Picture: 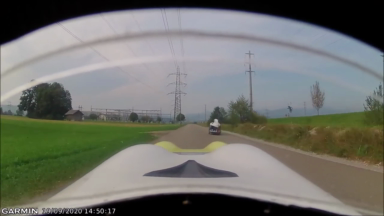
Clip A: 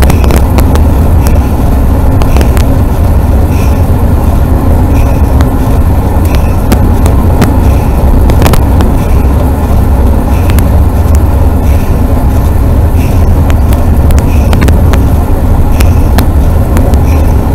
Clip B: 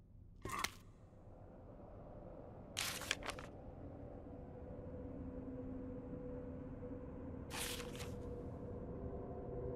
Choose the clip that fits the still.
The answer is A